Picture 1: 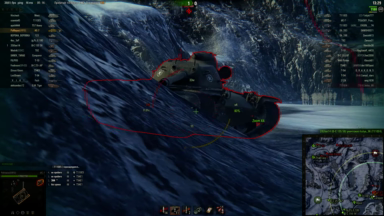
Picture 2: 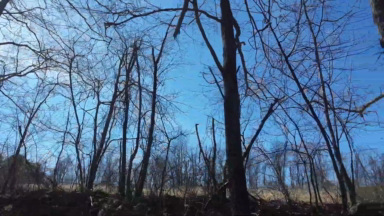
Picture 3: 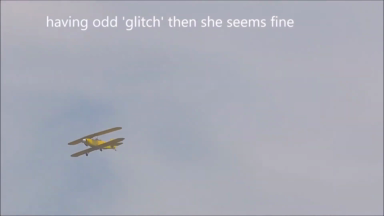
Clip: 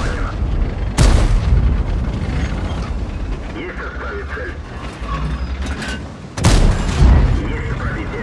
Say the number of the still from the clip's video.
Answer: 1